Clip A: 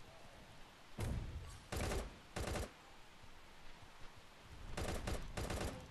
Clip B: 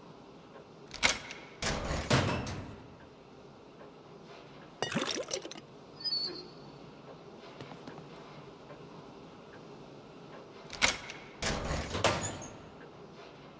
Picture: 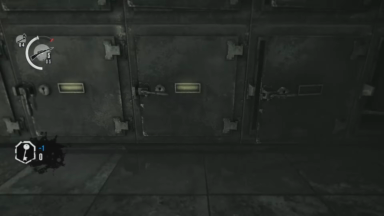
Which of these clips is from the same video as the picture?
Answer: B